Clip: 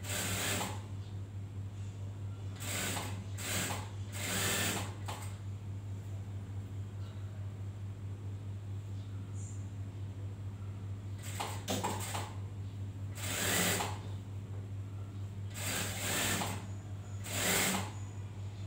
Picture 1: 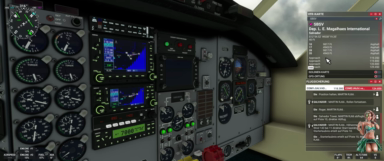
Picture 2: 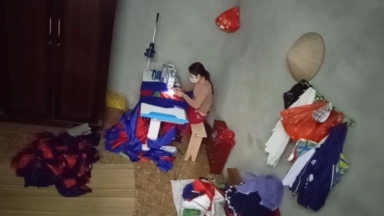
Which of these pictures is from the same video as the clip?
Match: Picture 2